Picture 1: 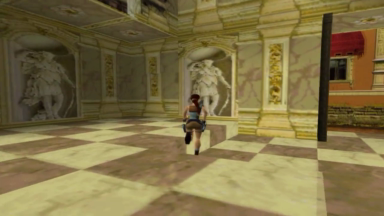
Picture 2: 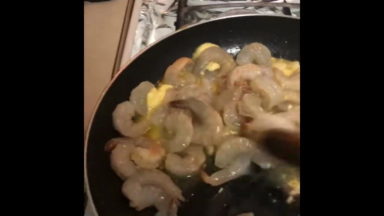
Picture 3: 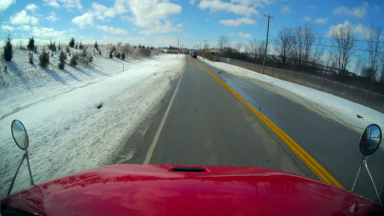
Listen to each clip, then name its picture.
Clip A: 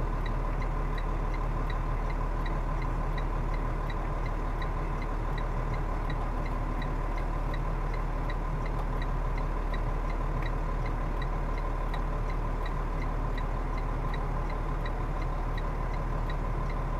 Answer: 3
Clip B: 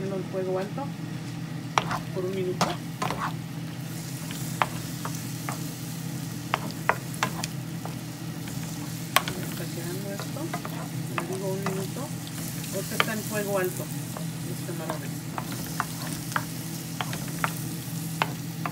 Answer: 2